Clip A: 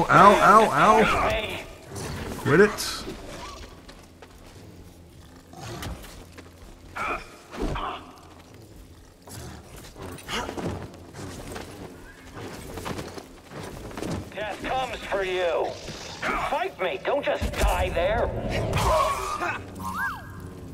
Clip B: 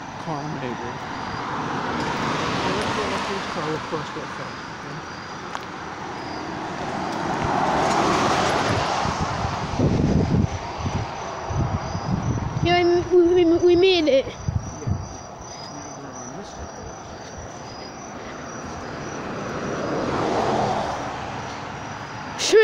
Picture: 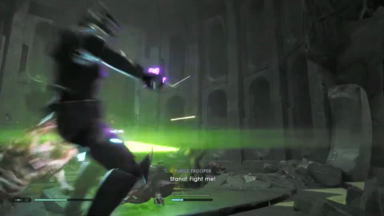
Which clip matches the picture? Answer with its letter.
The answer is A